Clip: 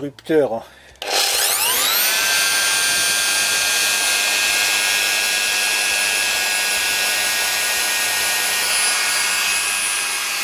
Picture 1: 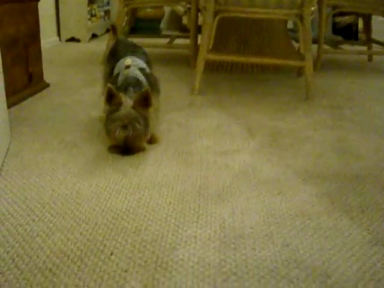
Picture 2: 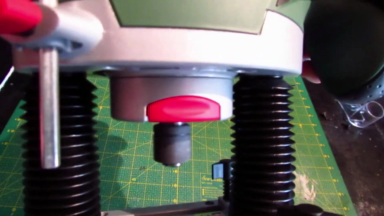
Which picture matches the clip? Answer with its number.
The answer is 2